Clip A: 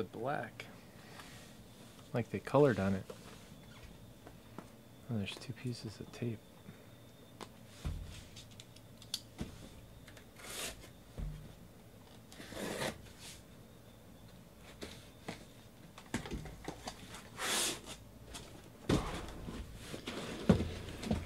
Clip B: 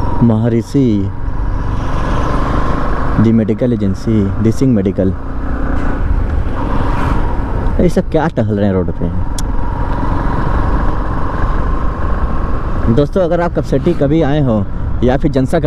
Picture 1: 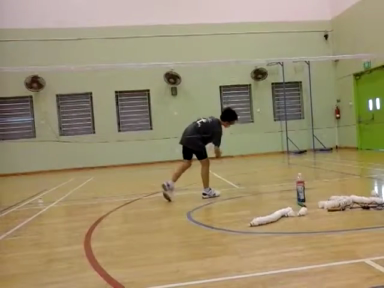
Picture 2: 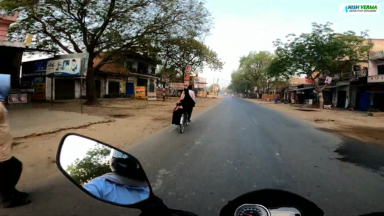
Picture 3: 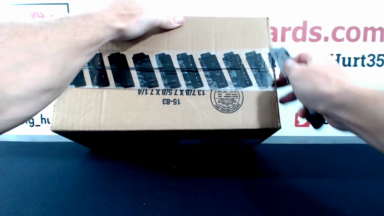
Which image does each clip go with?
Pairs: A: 3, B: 2